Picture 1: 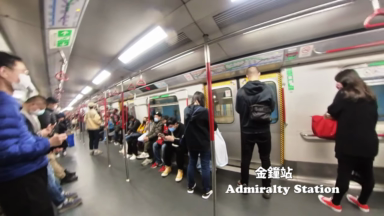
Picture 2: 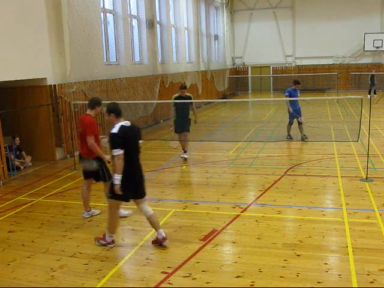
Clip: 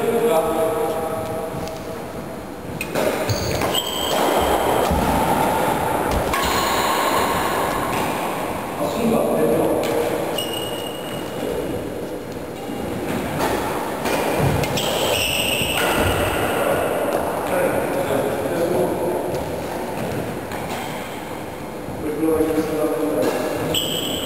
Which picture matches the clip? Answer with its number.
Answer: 2